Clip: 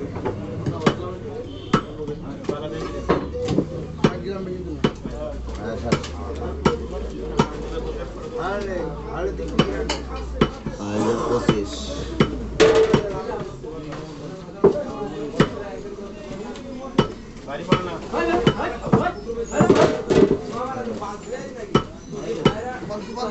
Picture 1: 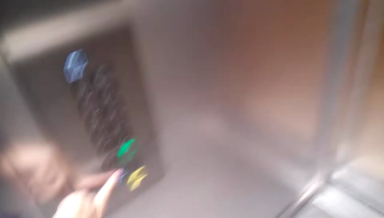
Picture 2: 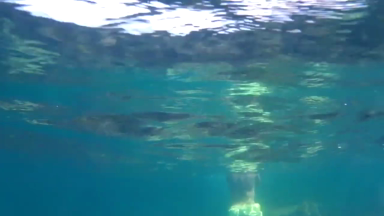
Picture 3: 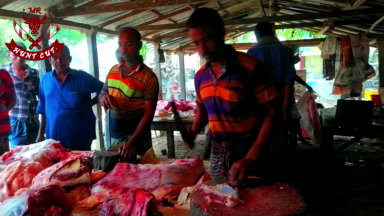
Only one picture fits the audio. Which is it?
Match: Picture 3